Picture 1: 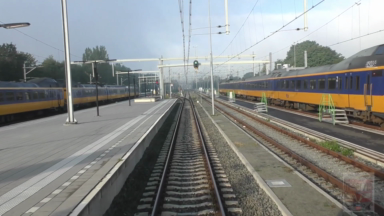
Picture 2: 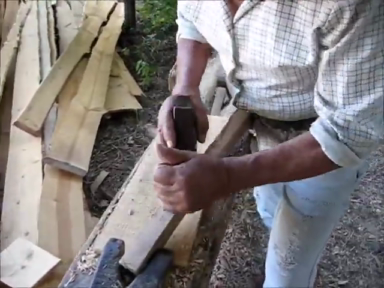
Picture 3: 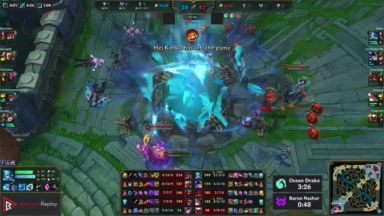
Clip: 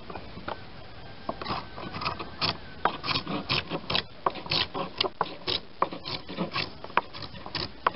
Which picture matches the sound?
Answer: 2